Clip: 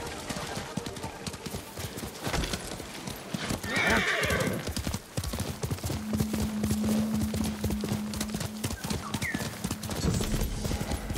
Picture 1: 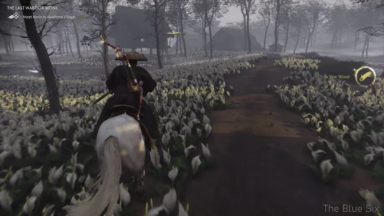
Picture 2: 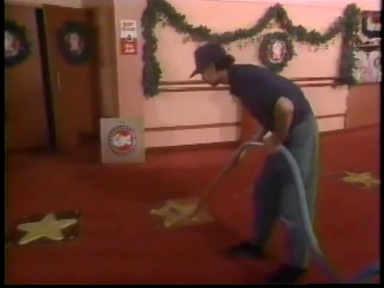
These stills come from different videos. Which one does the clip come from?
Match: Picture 1